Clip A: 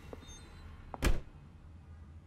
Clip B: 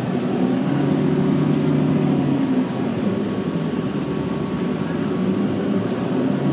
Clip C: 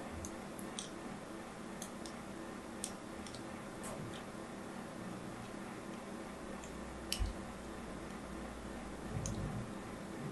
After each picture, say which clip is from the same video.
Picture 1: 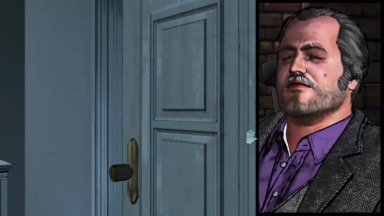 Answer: A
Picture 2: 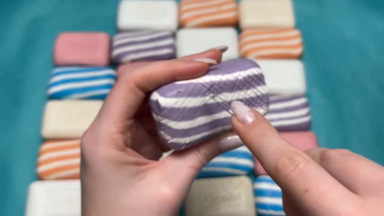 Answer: C